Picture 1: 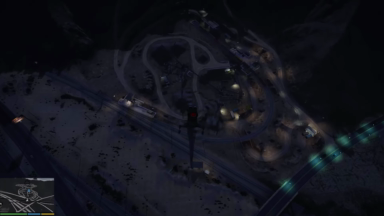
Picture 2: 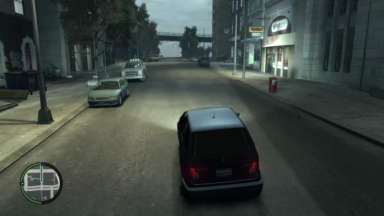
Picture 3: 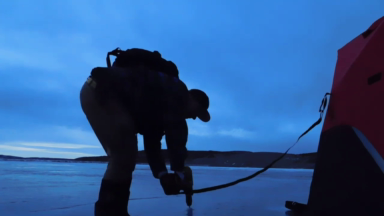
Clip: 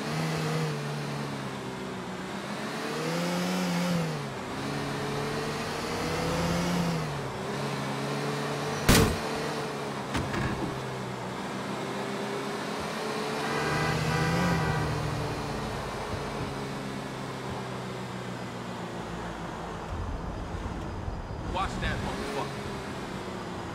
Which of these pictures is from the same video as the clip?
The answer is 2